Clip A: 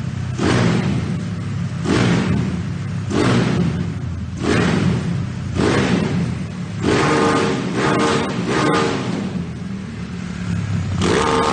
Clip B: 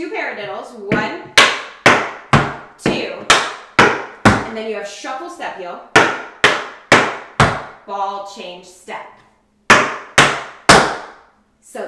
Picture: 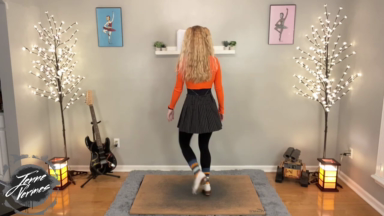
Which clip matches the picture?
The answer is B